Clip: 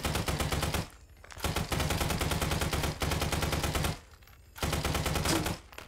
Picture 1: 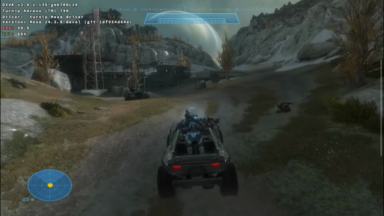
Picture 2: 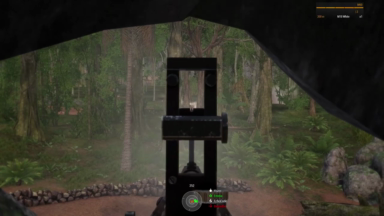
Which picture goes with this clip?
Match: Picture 2